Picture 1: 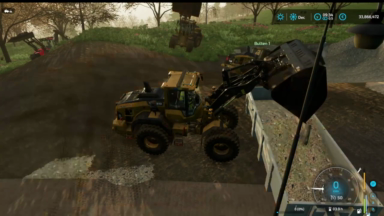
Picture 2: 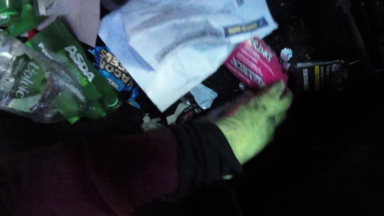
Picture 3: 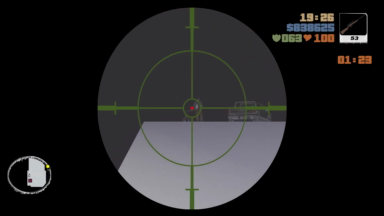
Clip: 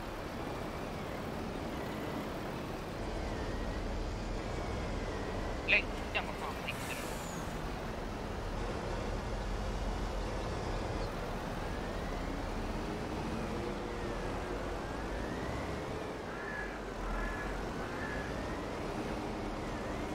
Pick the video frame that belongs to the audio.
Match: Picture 1